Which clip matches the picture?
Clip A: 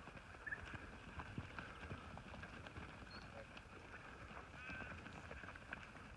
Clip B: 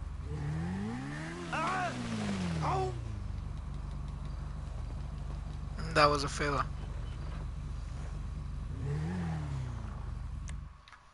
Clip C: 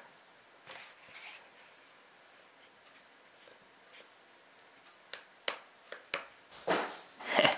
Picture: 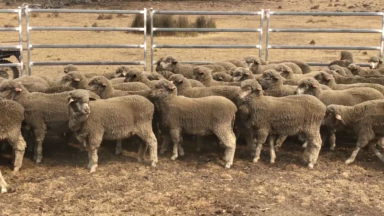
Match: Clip A